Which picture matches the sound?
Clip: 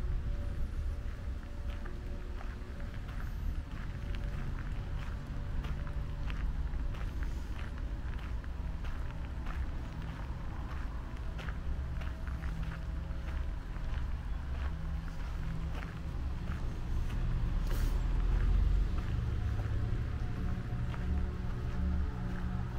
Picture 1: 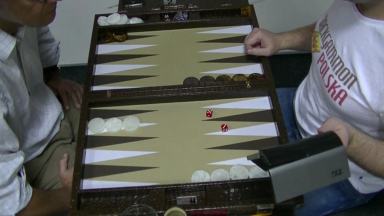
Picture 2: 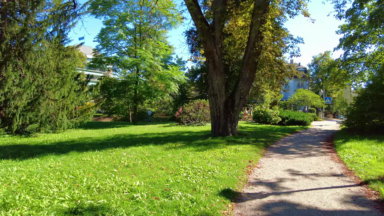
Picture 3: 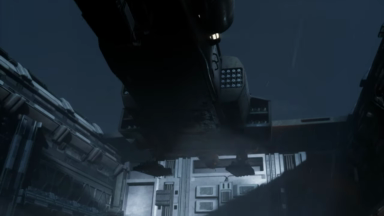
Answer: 2